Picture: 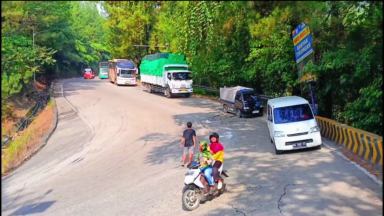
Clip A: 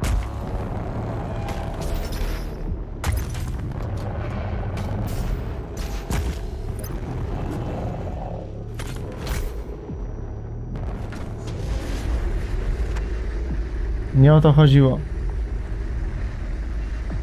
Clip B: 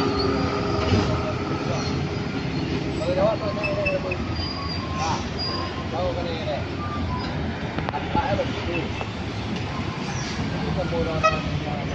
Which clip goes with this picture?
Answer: B